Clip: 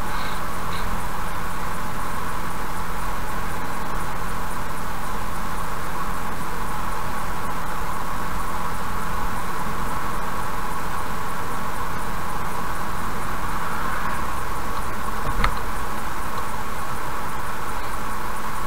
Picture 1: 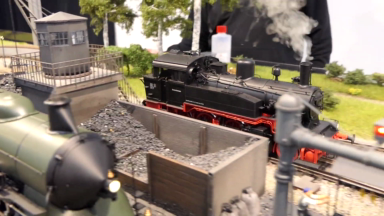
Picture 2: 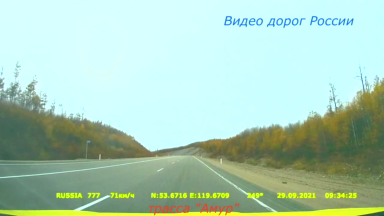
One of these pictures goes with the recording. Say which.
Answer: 2